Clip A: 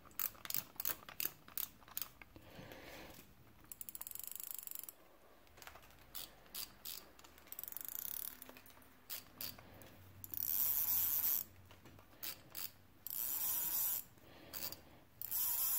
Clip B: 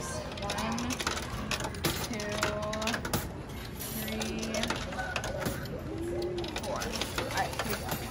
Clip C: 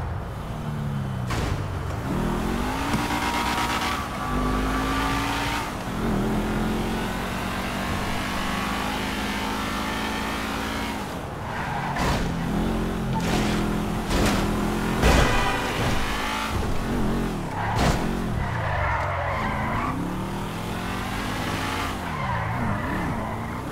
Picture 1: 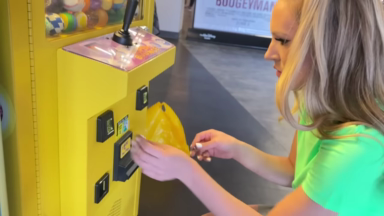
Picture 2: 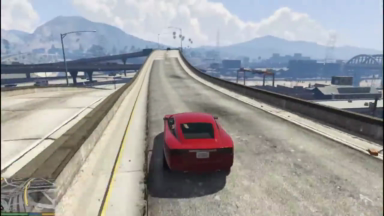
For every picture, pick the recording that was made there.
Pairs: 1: B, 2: C